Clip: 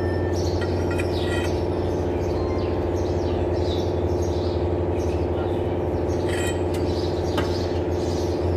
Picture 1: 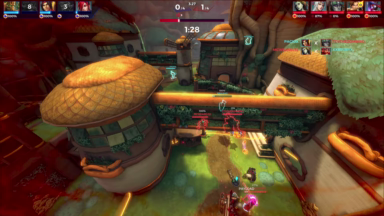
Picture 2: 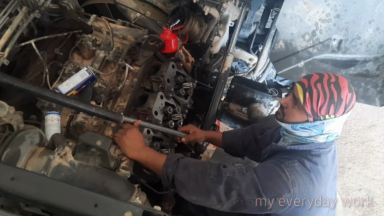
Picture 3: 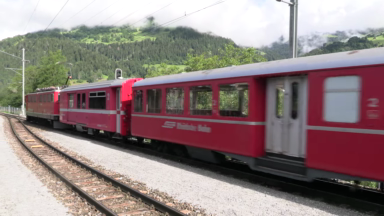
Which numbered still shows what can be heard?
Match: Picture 2